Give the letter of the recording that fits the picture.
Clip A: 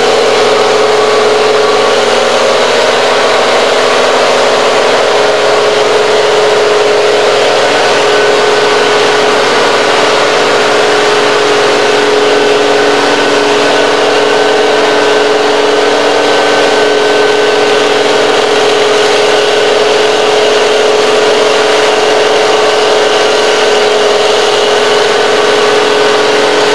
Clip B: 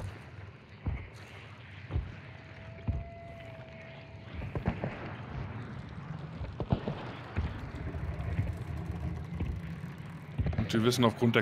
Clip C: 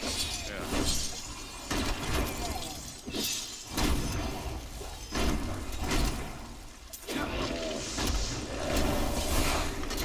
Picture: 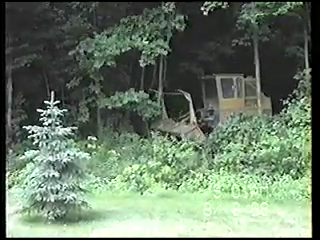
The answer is A